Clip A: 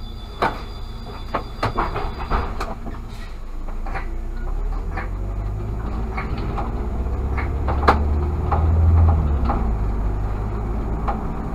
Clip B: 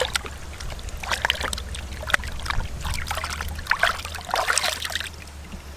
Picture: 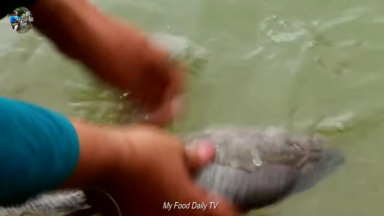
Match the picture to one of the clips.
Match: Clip B